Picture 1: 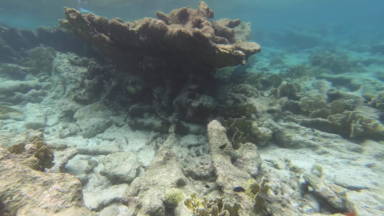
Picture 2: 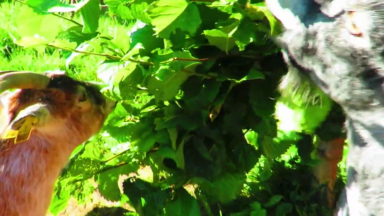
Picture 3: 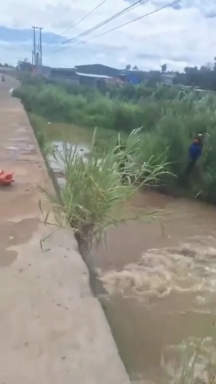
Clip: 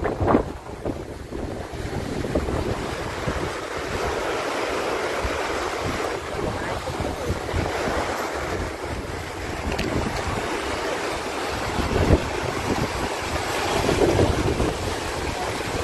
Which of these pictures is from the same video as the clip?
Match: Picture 3